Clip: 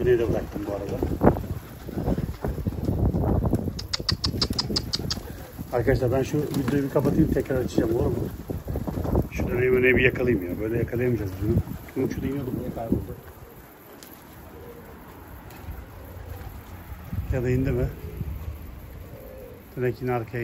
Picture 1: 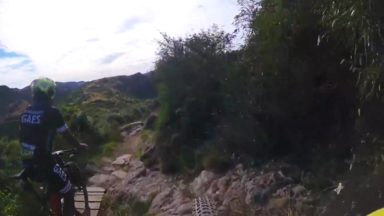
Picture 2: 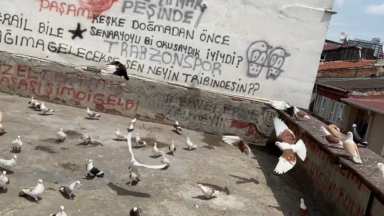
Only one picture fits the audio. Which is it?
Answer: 2